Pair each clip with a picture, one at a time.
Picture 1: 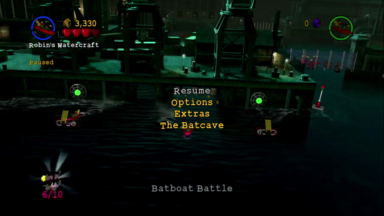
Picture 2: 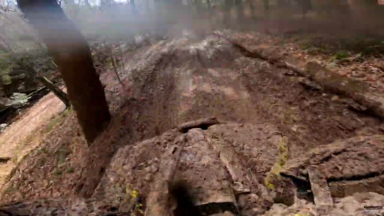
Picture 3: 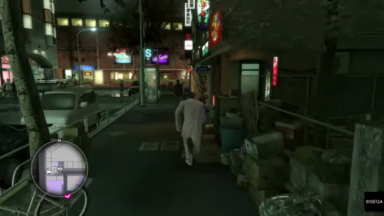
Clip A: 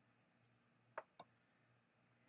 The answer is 1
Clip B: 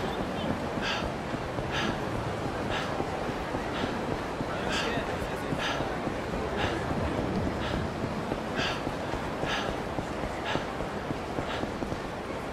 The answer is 3